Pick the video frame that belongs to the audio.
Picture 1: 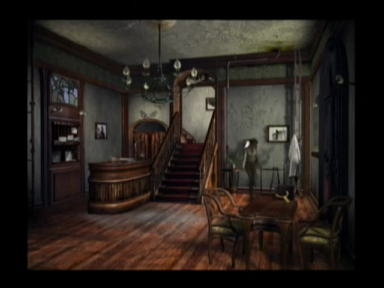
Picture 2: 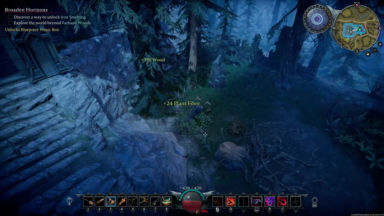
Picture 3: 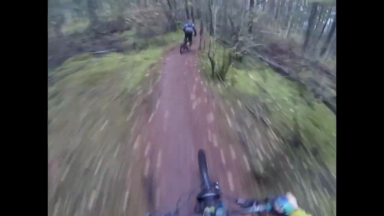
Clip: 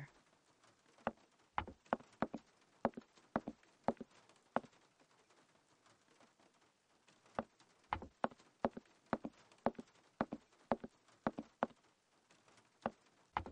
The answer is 1